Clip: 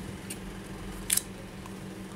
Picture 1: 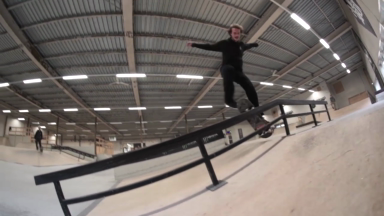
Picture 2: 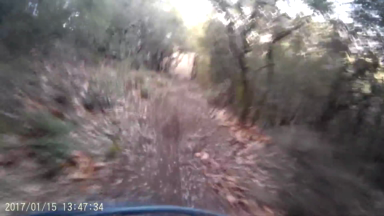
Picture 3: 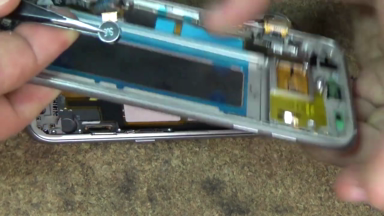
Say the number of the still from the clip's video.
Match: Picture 3